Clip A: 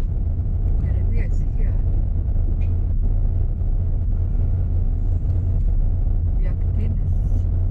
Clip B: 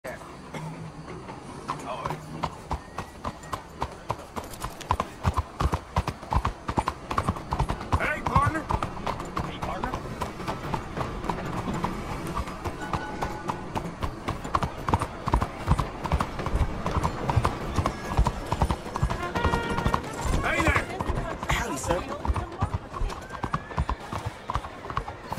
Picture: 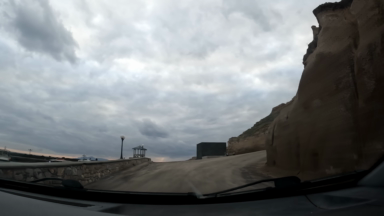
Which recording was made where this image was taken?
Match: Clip A